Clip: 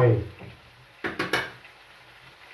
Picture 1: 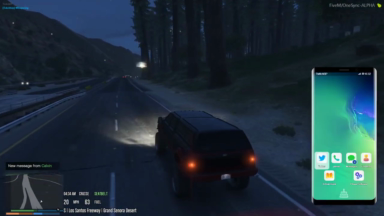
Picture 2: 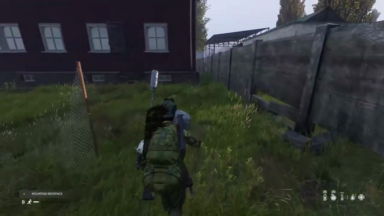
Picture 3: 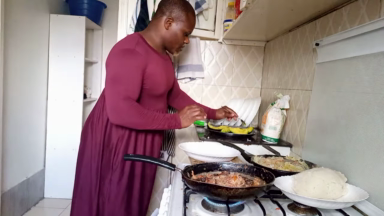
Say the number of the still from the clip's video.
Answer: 3